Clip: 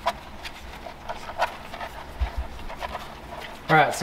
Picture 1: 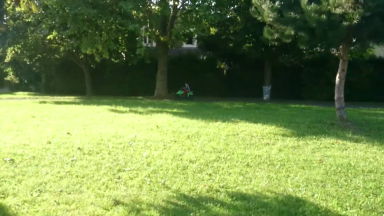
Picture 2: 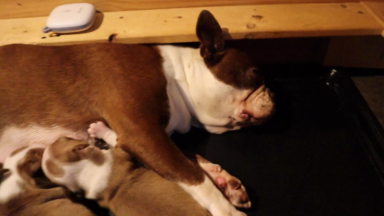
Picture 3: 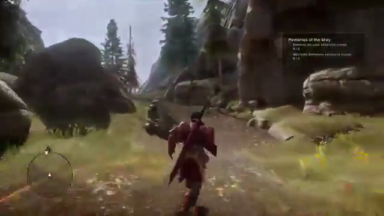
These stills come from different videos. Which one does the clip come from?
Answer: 2